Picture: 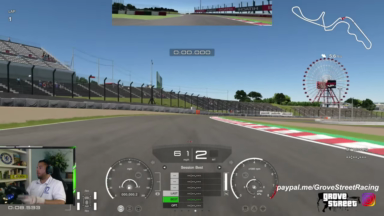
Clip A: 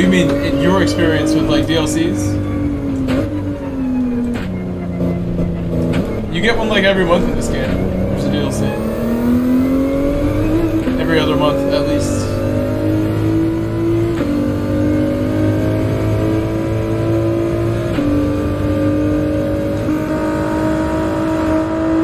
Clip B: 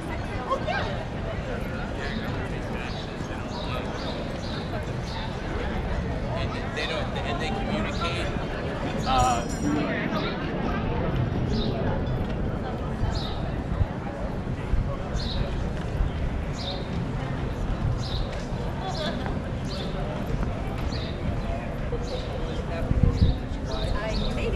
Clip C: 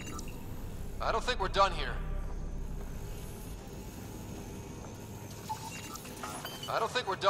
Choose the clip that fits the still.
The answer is A